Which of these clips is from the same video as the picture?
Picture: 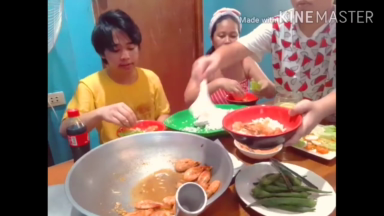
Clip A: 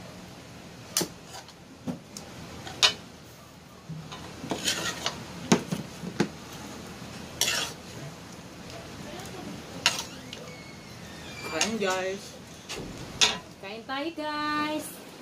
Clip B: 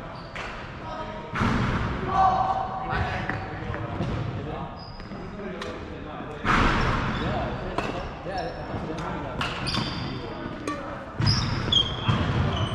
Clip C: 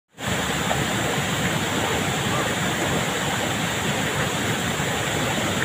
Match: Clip A